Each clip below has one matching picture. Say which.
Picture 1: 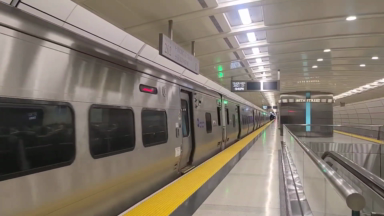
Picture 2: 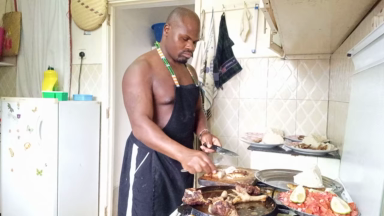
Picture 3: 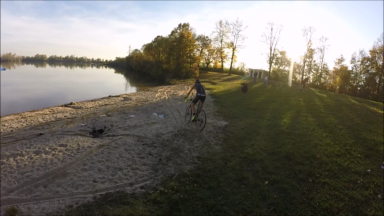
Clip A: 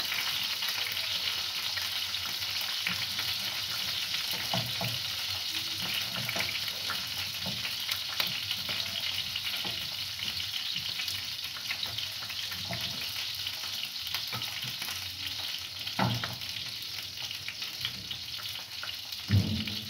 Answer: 2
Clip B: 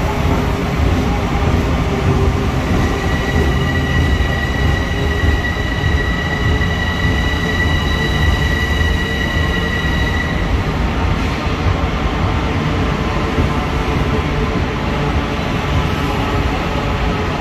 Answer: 1